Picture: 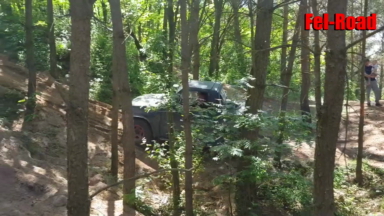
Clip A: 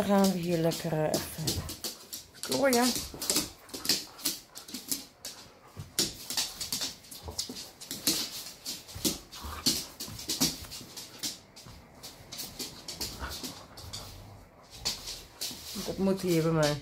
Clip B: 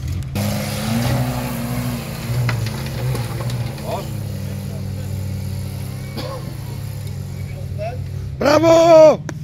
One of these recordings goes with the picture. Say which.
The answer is B